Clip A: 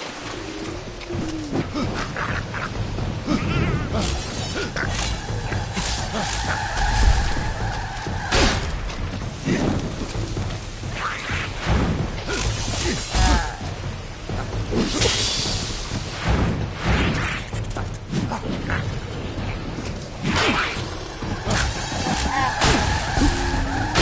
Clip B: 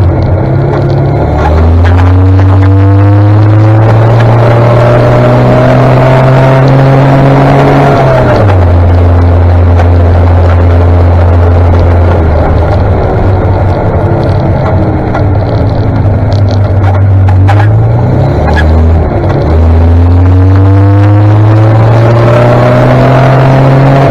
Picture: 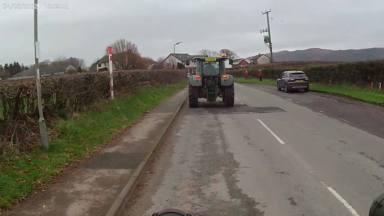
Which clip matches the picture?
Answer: B